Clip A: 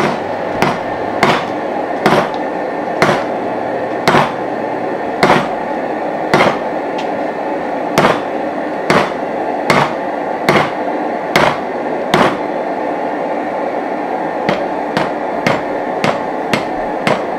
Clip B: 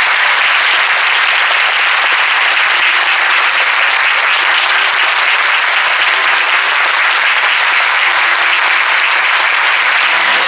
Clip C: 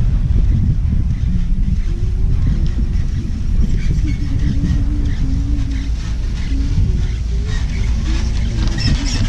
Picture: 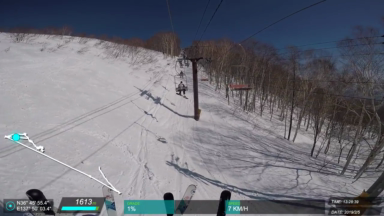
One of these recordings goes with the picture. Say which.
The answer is C